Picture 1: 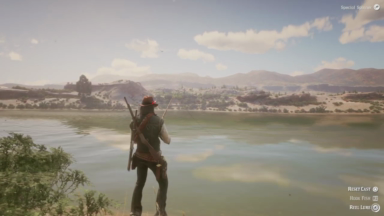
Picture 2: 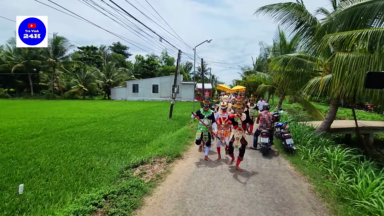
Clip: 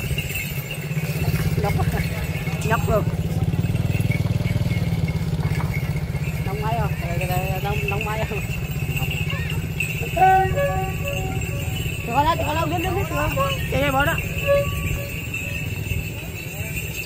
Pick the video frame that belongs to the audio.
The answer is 2